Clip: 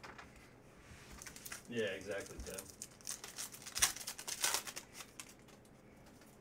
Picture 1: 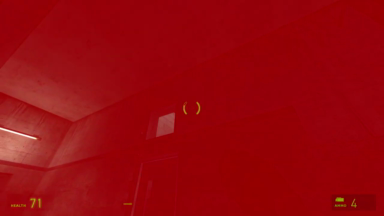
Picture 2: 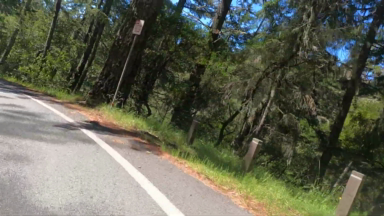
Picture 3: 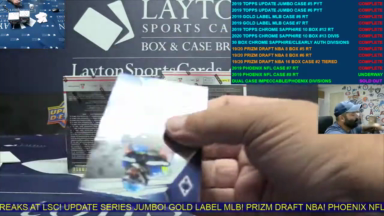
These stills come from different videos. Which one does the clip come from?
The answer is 3